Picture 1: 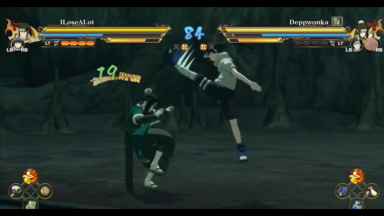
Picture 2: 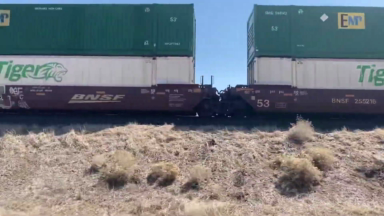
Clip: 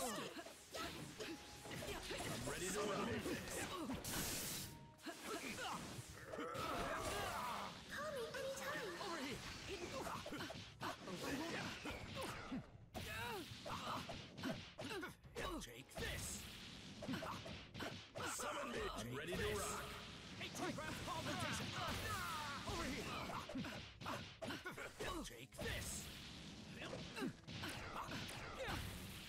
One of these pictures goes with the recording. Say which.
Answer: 1